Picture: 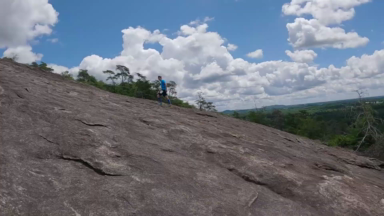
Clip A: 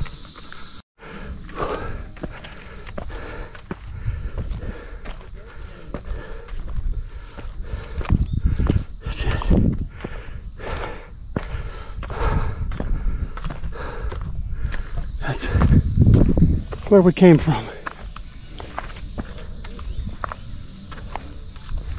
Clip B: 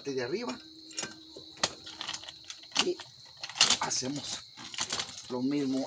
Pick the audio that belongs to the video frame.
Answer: A